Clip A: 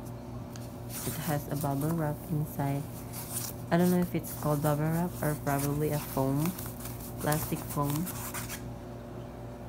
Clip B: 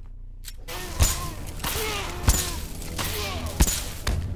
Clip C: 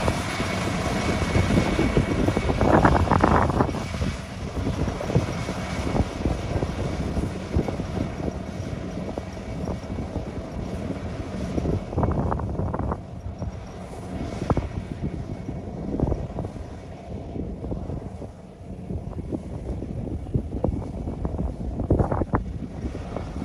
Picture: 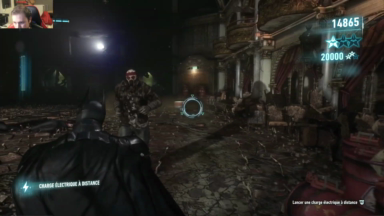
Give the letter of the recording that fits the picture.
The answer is B